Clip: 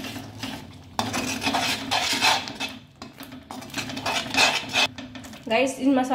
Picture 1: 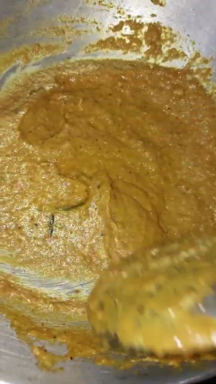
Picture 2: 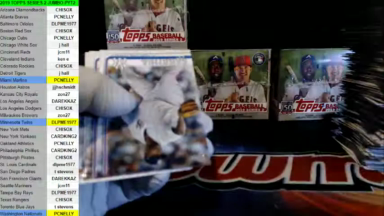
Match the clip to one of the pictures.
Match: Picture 1